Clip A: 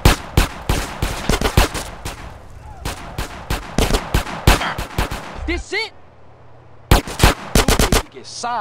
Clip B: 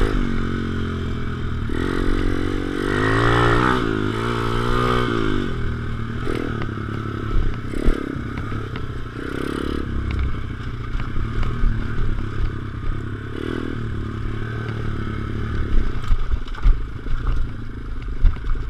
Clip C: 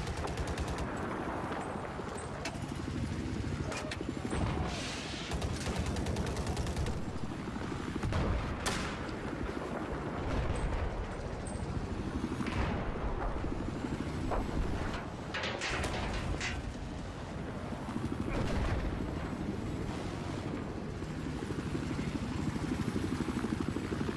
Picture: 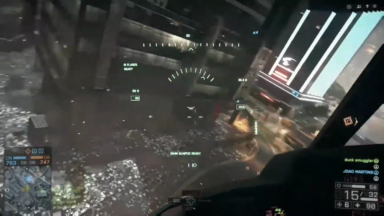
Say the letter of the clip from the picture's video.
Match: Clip C